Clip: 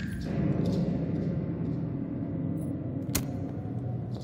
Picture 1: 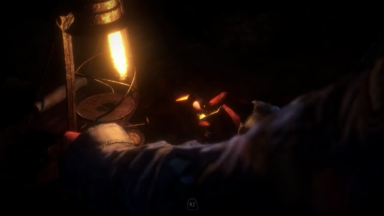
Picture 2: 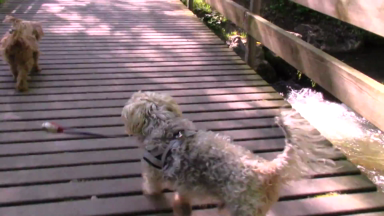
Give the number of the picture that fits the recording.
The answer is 1